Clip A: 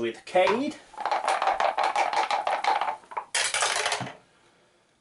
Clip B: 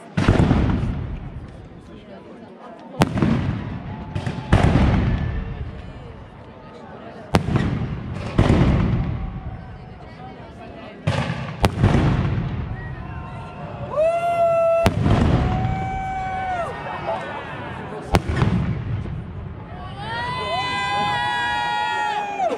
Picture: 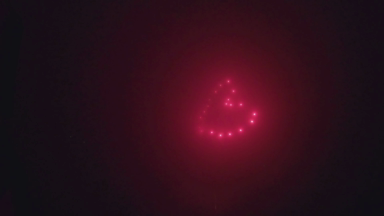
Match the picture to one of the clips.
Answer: B